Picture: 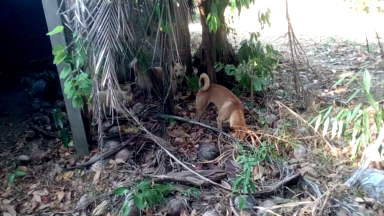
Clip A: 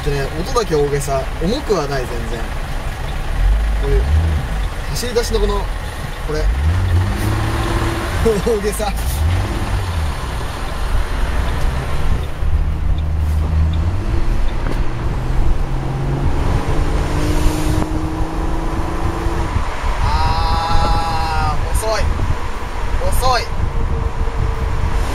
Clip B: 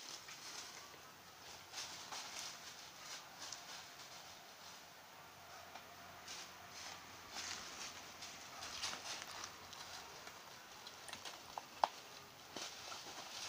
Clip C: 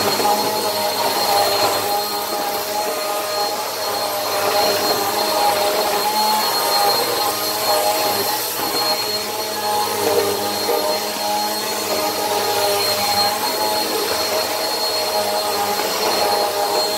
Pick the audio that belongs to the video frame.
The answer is B